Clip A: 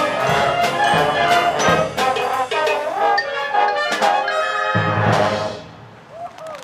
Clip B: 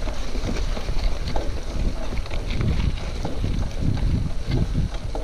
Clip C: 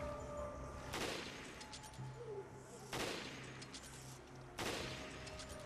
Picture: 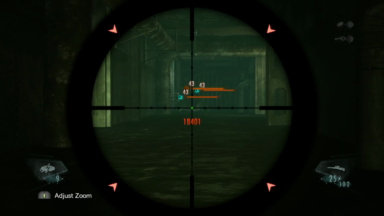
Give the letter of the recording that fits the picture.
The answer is C